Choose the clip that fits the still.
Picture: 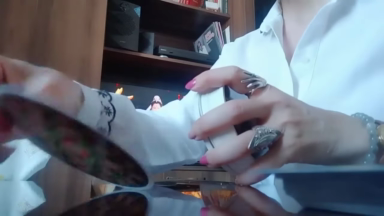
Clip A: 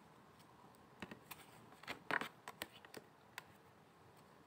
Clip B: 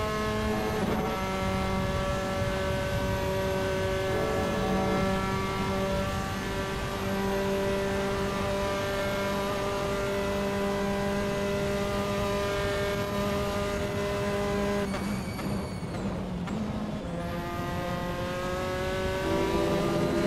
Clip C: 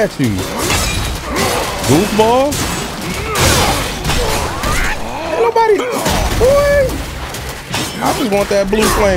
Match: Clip A